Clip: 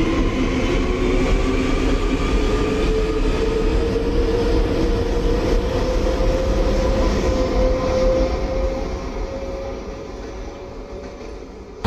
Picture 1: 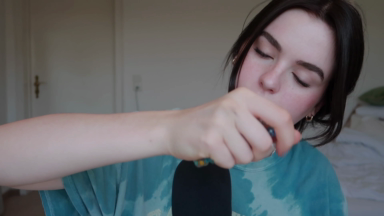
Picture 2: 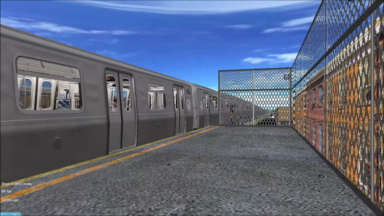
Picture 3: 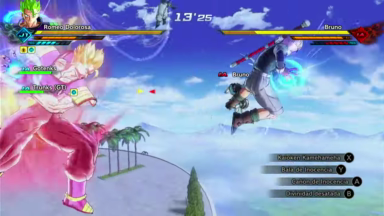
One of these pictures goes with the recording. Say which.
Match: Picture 2